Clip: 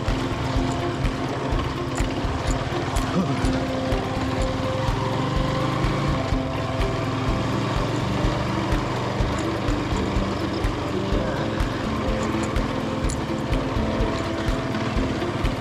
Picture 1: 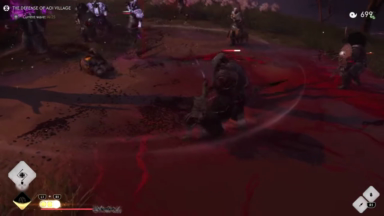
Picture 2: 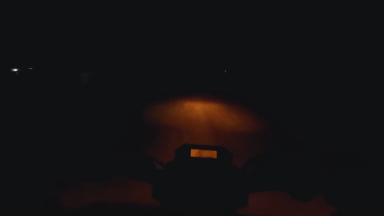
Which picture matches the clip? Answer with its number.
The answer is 2